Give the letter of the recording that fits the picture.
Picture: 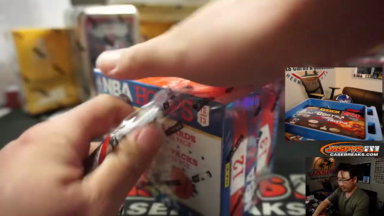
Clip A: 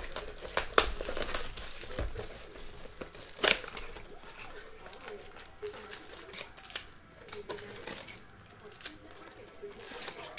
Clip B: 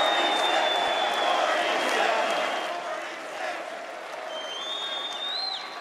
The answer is A